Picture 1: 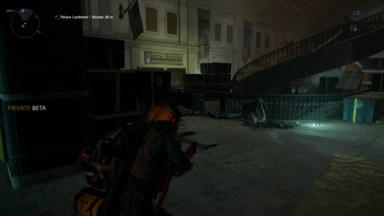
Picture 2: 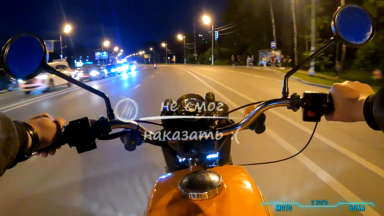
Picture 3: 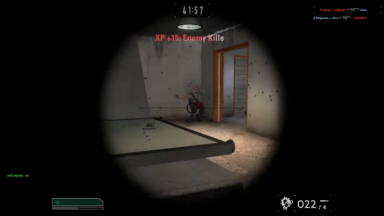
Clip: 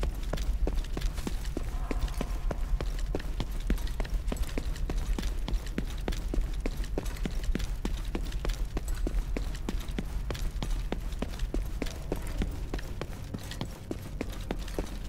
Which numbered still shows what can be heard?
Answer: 1